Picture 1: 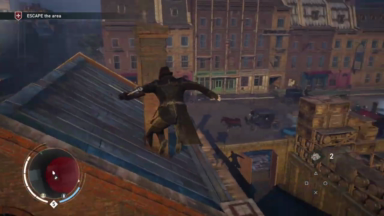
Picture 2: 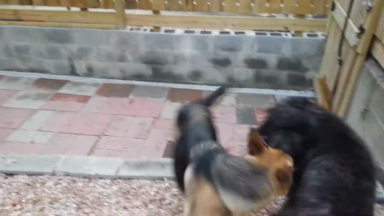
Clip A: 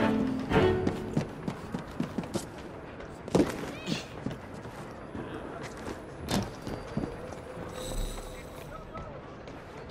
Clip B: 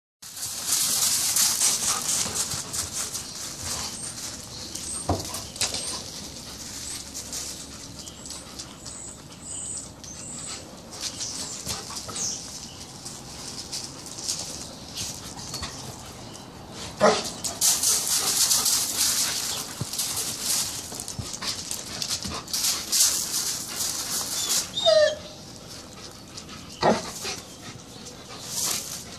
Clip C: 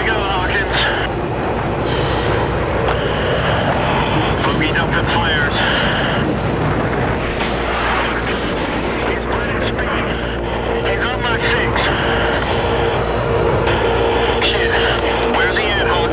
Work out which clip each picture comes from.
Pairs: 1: A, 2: B